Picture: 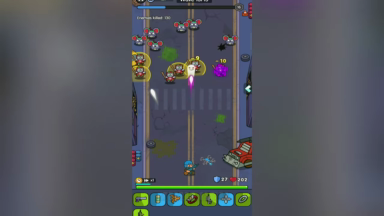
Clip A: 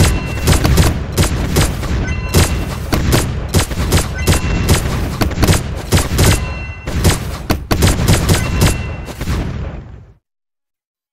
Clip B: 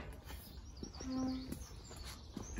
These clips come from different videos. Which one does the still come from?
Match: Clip A